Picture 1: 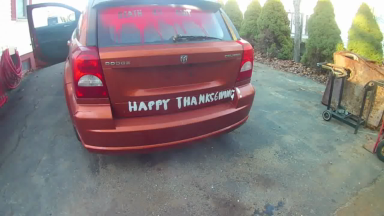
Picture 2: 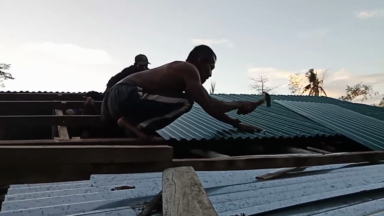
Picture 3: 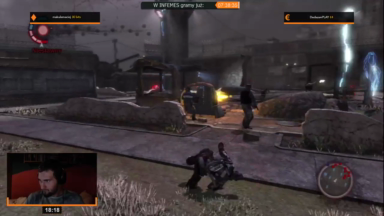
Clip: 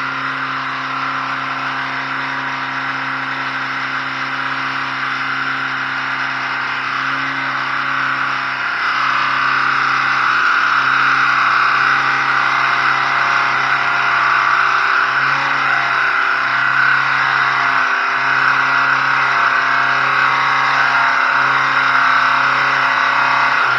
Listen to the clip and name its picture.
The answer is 1